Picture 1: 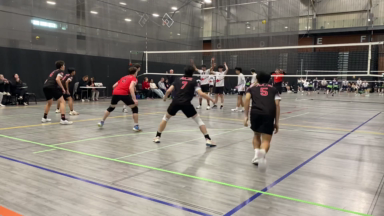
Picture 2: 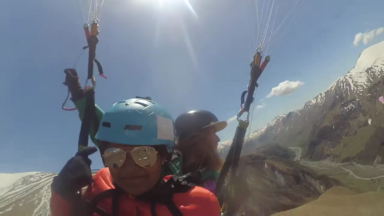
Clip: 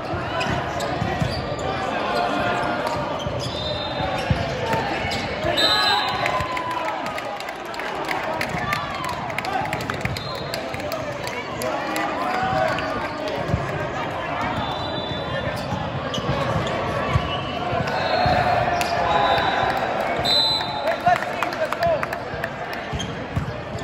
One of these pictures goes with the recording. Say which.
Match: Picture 1